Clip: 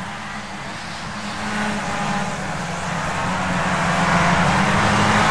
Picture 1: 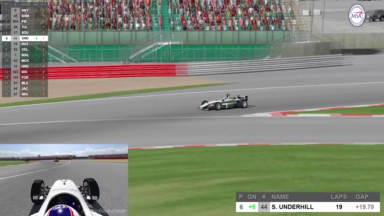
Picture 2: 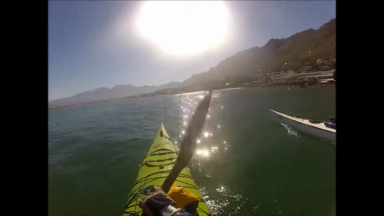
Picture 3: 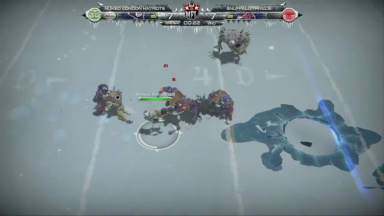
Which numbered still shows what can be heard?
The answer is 1